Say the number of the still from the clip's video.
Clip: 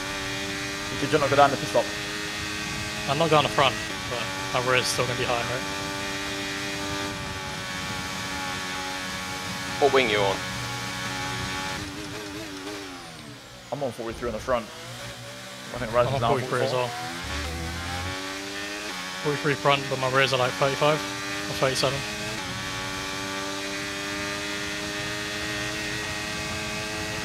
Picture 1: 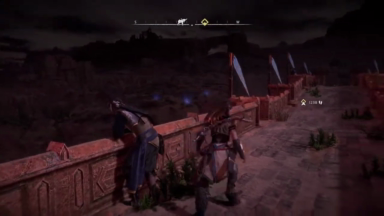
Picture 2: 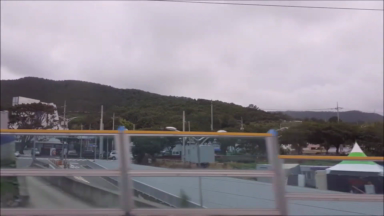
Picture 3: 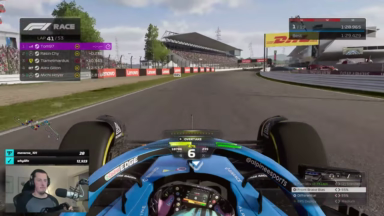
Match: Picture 3